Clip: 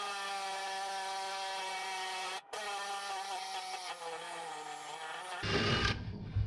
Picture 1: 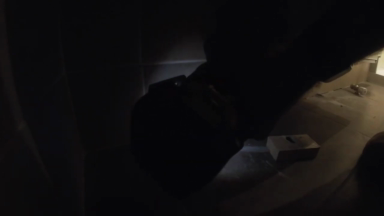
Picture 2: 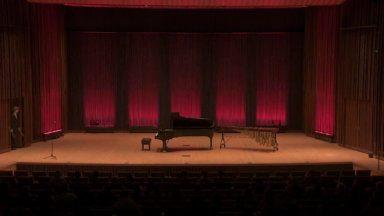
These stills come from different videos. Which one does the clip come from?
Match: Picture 1